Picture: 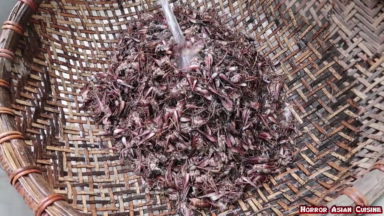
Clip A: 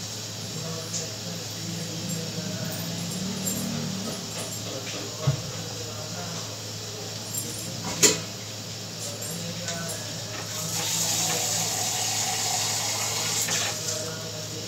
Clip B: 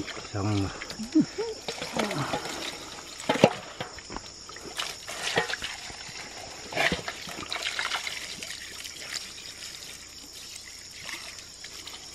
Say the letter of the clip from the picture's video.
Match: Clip B